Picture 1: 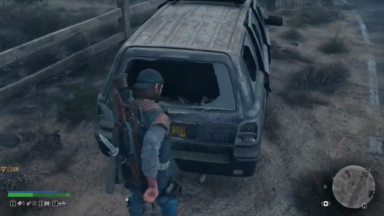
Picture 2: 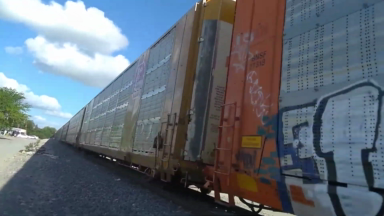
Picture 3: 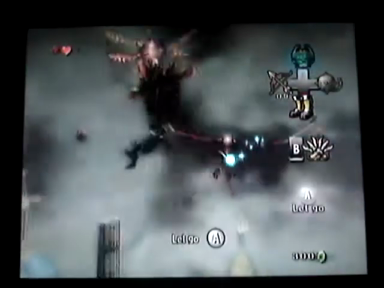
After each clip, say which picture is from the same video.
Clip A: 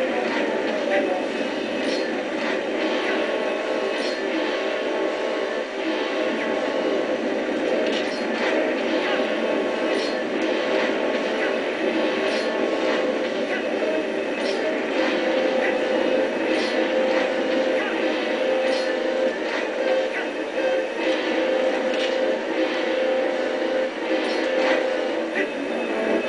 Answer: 3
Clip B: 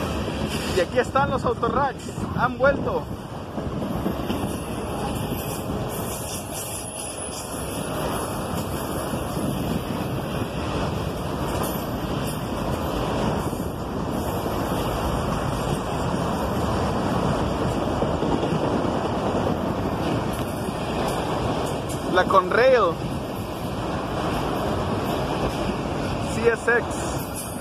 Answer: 2